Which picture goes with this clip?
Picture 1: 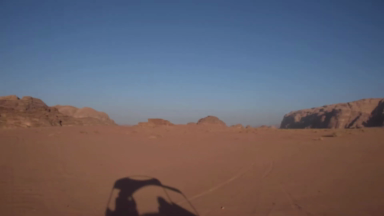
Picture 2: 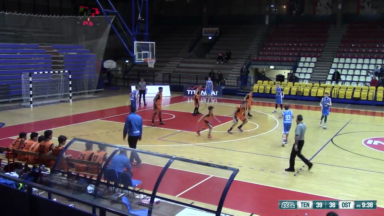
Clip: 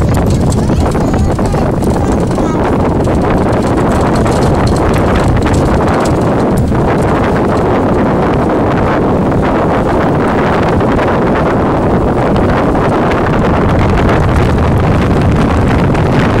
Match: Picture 1